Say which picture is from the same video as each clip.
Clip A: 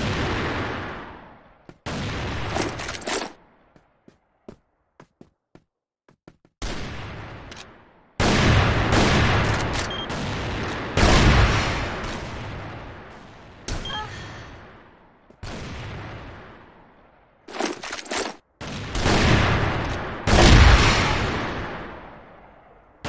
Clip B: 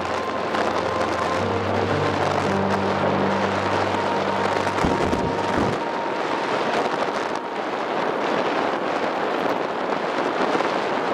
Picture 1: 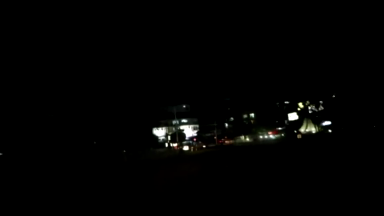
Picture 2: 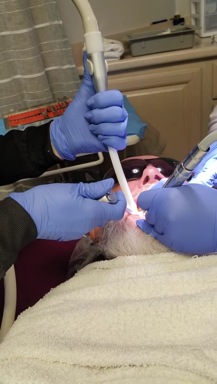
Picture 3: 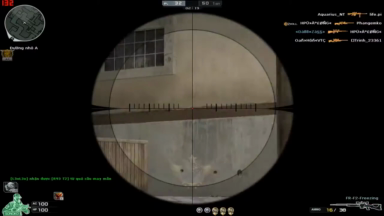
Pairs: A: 3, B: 1